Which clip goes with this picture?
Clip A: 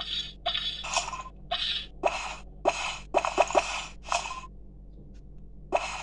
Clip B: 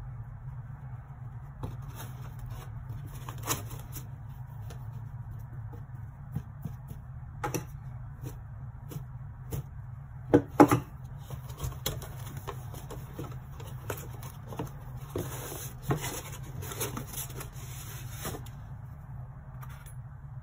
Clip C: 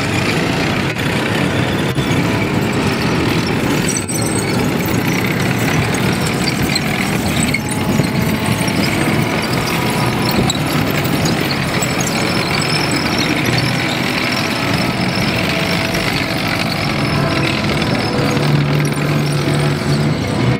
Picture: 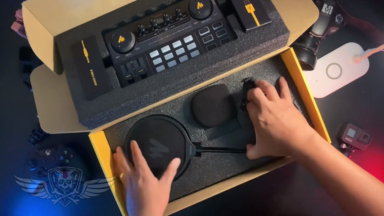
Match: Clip B